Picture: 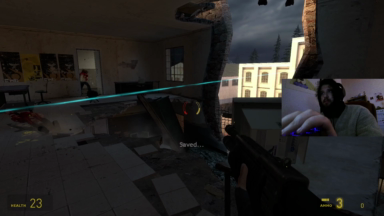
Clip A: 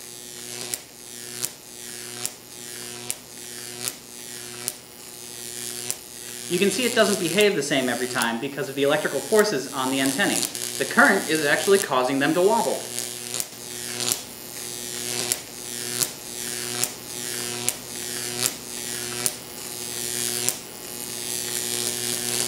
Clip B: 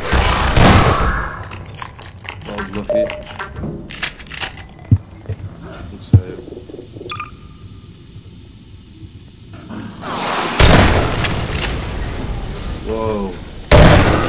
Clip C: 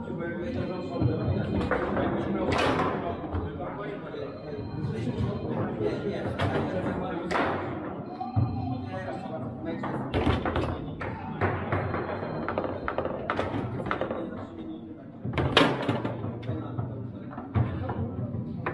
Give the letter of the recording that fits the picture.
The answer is B